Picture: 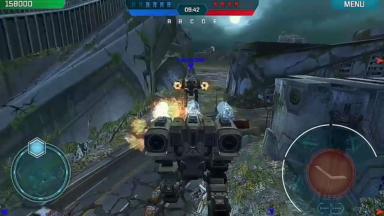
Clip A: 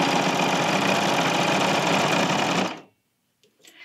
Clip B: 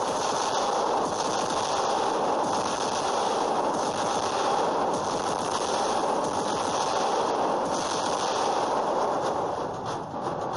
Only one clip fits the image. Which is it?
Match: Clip B